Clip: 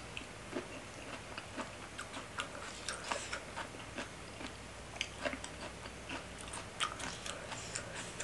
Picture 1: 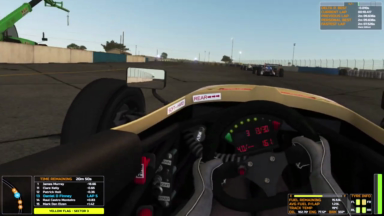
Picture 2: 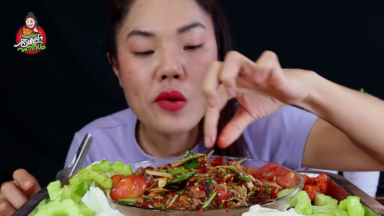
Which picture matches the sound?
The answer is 2